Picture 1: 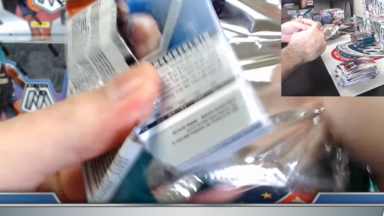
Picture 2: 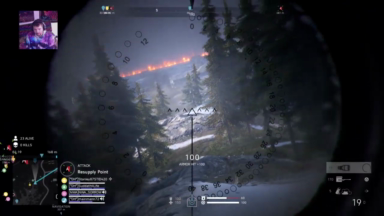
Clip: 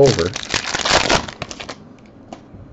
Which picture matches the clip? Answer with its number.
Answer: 1